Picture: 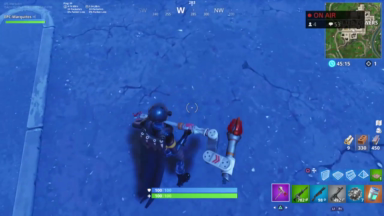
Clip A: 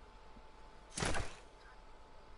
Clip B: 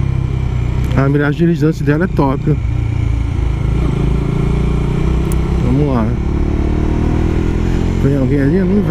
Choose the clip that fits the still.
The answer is A